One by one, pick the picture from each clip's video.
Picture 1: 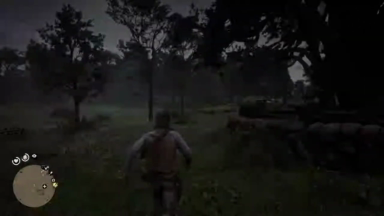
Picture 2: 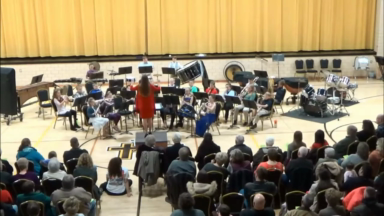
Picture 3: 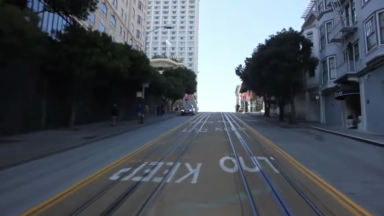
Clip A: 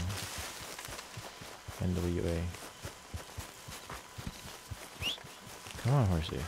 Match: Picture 1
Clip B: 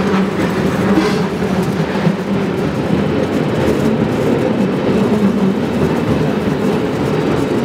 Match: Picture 3